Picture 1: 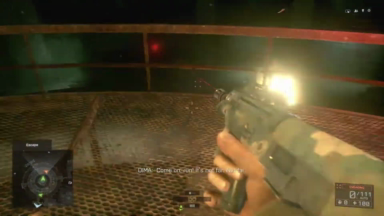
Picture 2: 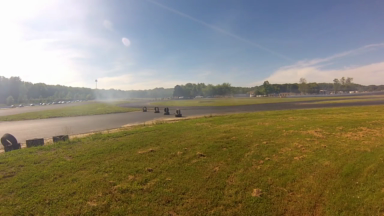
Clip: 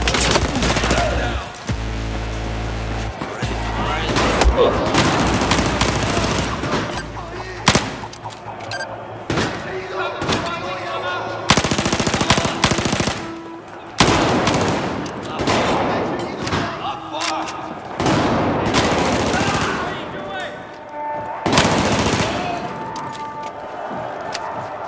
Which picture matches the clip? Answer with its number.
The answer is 1